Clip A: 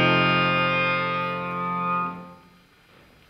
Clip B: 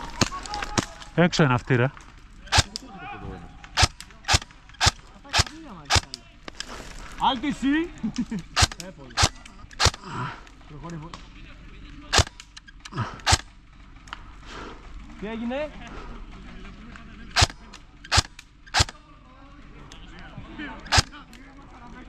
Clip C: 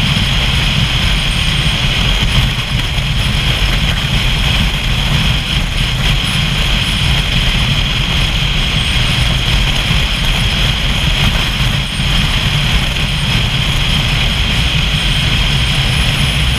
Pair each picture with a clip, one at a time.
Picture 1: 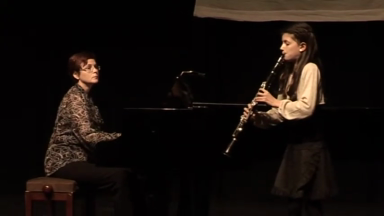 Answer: A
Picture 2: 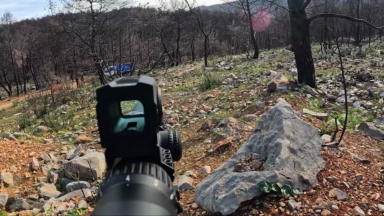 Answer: B